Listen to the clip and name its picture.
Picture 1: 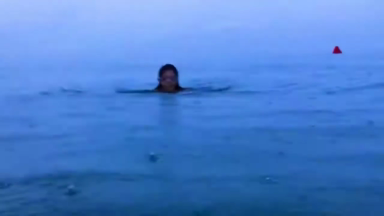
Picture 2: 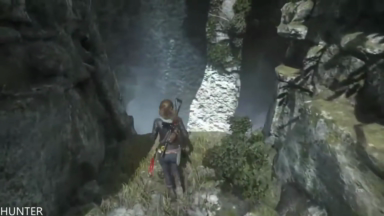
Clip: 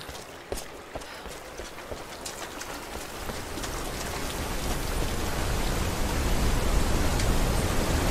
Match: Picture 2